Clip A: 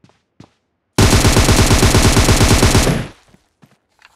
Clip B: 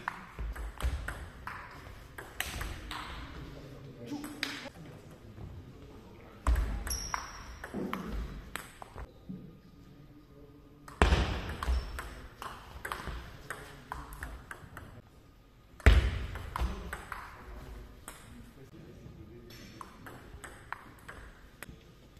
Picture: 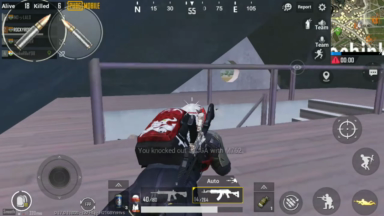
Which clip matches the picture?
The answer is A